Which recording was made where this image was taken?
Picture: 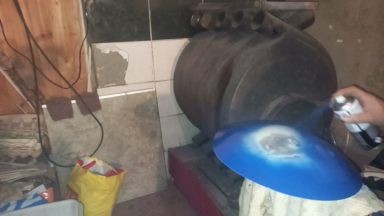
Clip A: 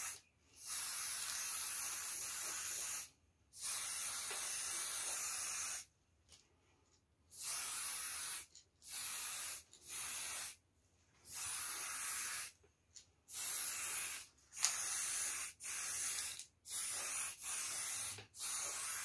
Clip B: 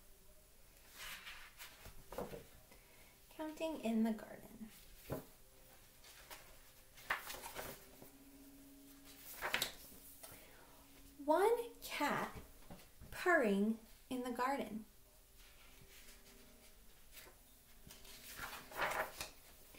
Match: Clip A